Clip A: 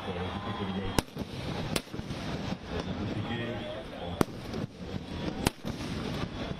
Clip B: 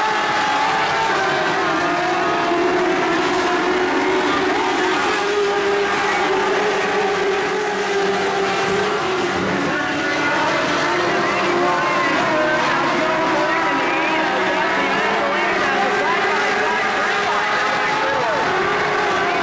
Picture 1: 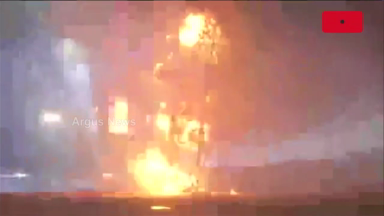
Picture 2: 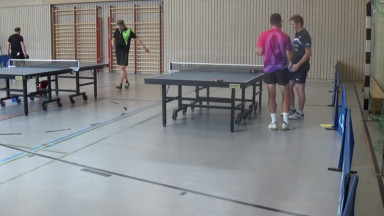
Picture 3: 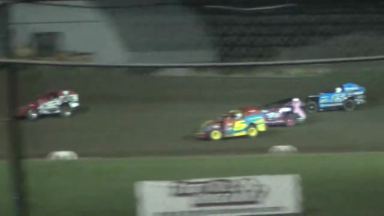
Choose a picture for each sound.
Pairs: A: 1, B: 3